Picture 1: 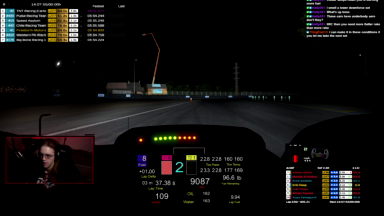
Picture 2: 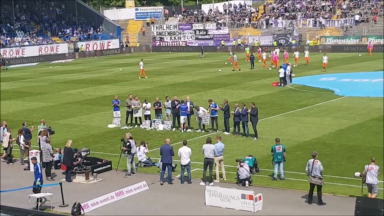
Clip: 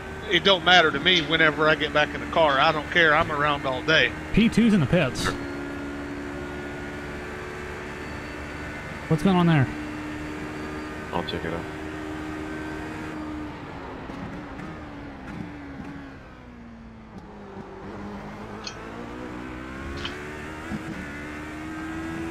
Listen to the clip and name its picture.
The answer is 1